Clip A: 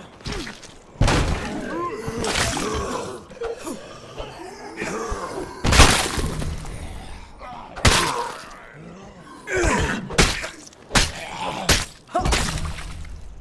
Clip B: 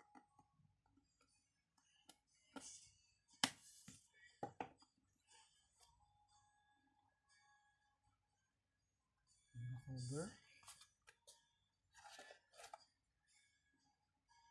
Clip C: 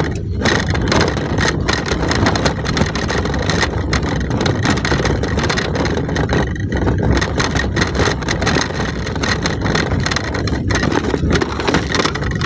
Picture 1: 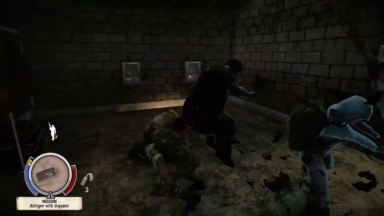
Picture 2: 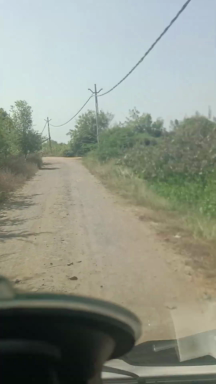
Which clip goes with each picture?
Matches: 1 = A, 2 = C